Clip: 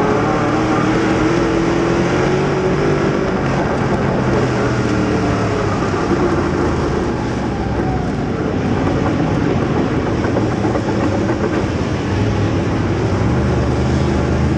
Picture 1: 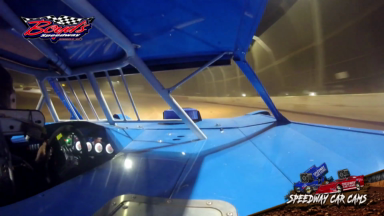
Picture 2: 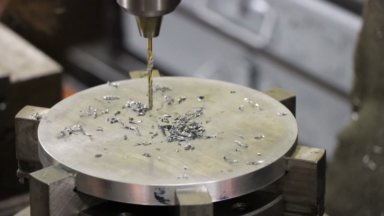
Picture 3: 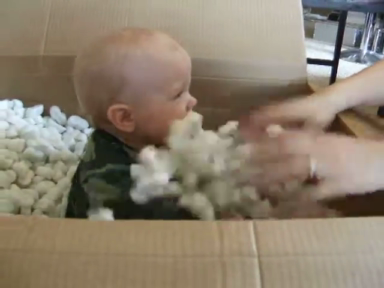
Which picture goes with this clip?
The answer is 1